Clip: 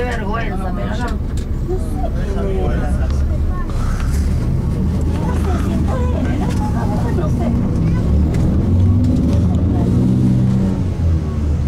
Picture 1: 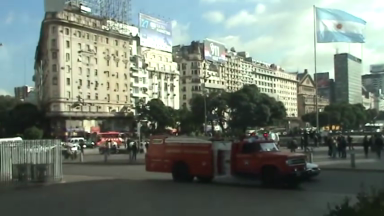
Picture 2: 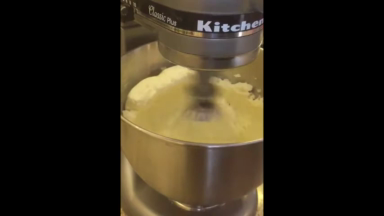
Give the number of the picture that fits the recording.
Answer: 1